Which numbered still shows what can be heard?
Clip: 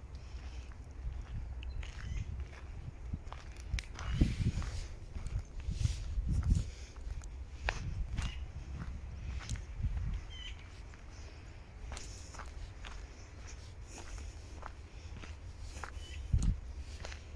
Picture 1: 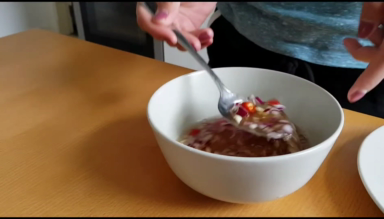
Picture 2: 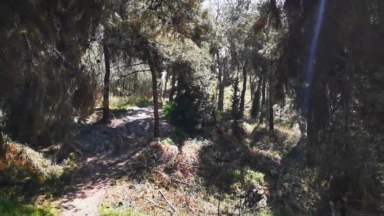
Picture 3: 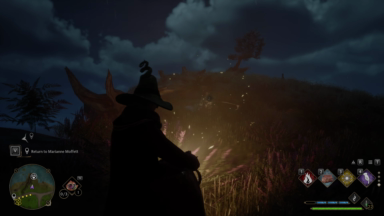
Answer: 2